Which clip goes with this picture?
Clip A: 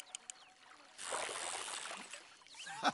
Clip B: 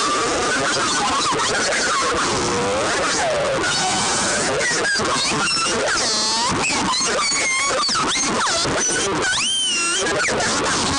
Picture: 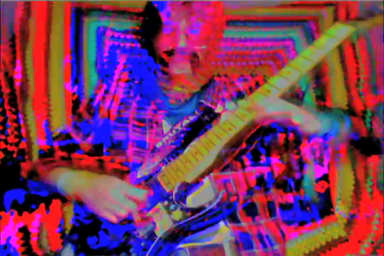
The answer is B